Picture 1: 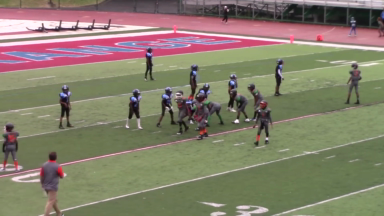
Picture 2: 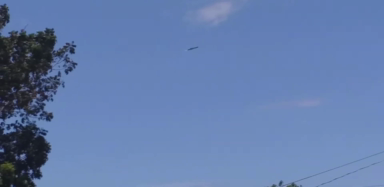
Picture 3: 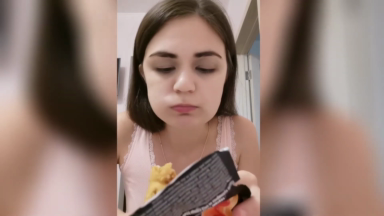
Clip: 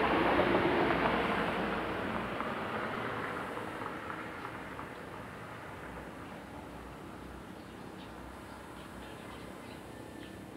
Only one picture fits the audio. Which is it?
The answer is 2